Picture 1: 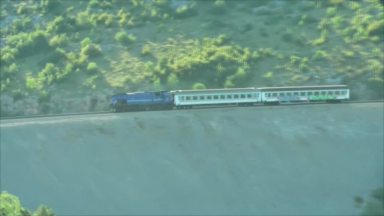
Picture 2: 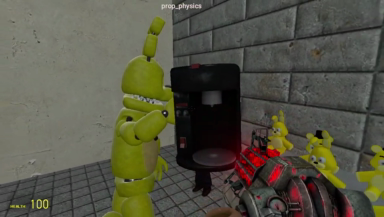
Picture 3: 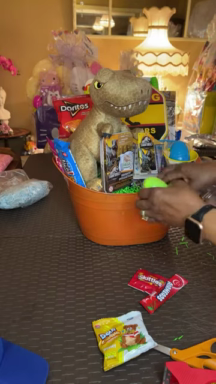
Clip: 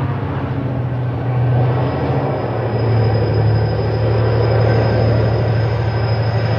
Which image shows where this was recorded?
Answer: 1